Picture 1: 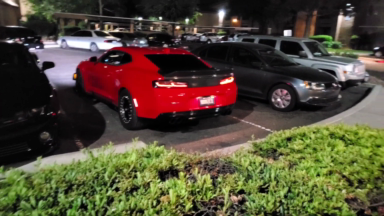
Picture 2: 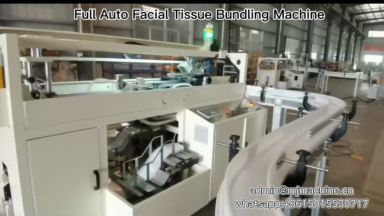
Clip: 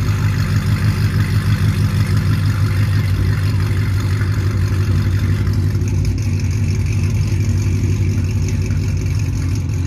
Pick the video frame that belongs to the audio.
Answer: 1